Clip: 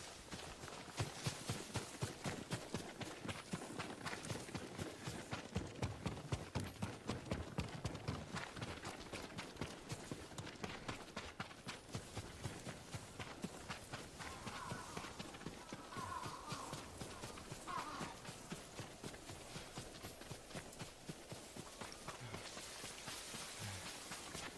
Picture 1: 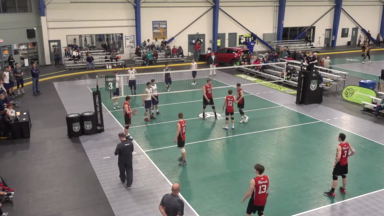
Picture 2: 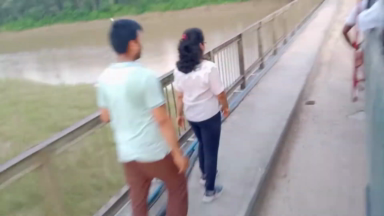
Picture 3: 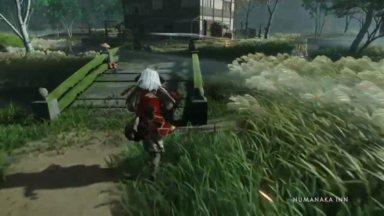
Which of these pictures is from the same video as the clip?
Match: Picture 3